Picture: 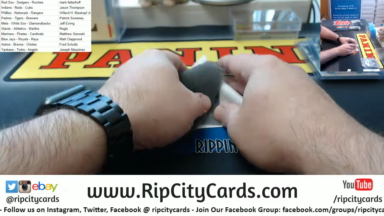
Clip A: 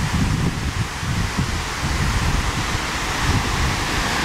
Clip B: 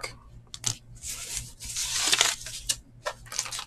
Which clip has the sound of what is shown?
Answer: B